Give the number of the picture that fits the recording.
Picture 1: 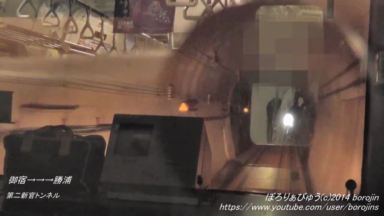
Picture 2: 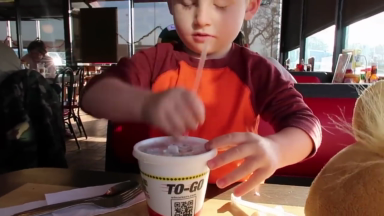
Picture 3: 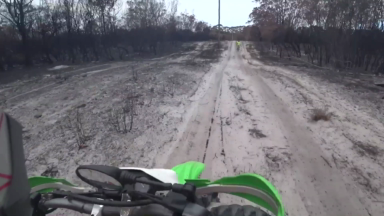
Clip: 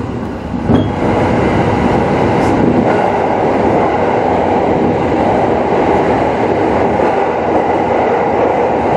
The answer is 1